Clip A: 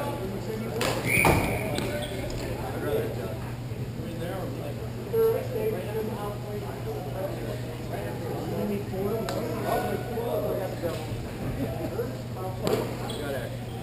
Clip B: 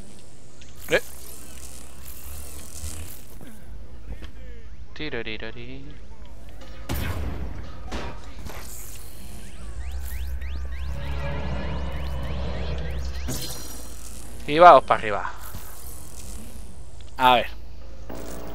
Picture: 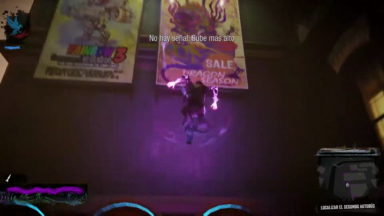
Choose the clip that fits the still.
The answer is B